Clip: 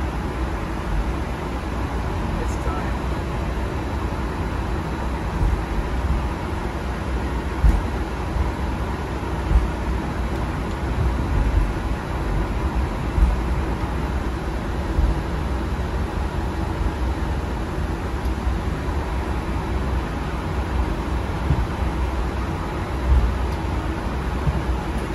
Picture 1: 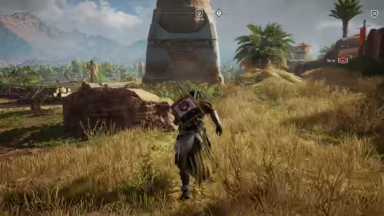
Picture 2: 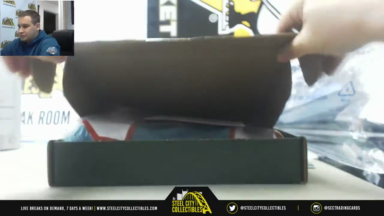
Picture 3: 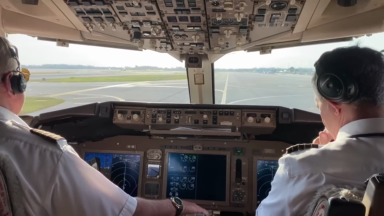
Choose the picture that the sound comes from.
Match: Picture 3